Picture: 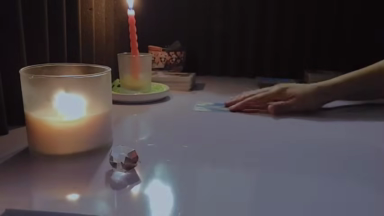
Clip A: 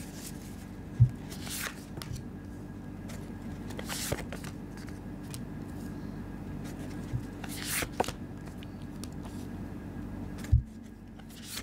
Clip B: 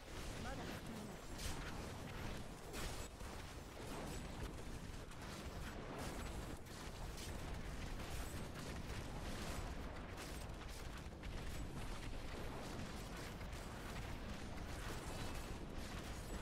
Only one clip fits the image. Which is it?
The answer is A